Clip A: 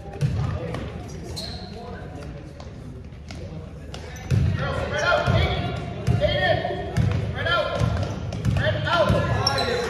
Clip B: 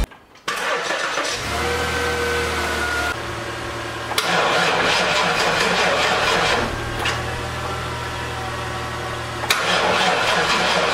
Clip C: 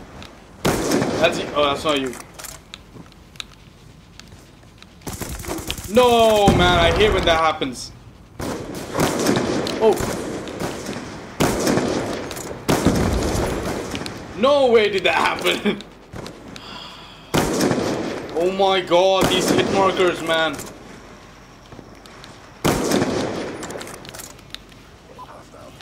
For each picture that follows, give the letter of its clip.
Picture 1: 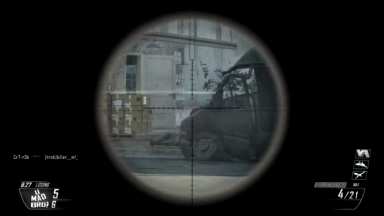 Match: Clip C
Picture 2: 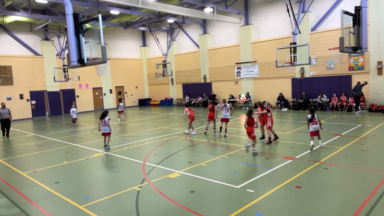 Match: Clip A